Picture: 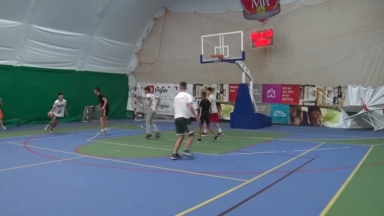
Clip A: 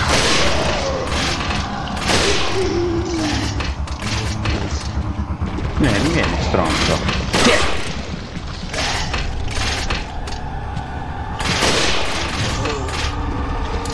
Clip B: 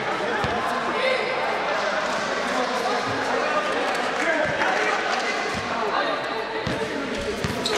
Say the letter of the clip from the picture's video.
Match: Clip B